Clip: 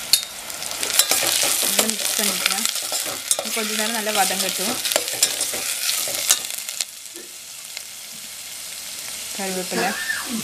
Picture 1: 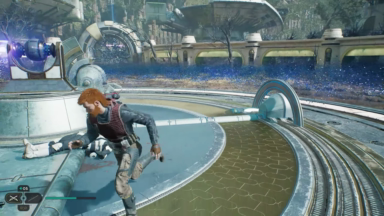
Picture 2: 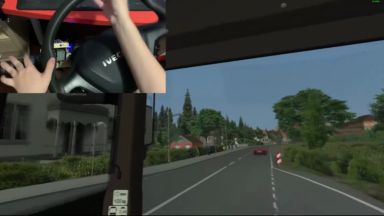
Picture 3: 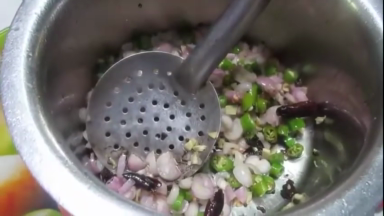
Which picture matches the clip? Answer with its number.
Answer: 3